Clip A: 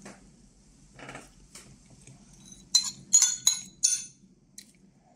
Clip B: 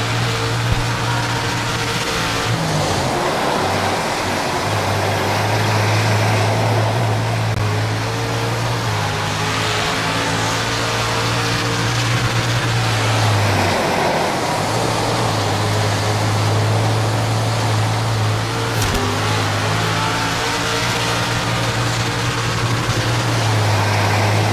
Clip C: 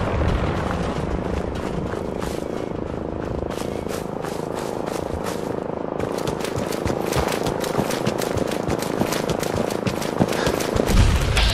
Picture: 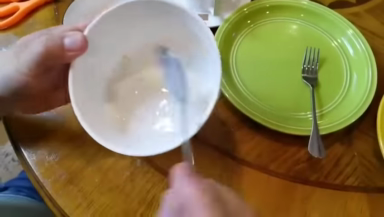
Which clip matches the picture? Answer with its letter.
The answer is A